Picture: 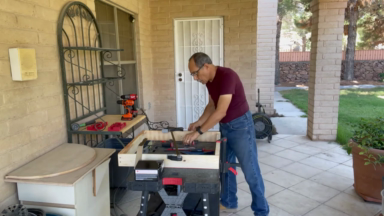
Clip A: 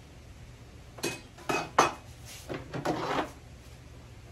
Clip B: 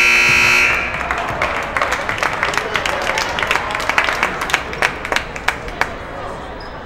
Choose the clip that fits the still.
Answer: A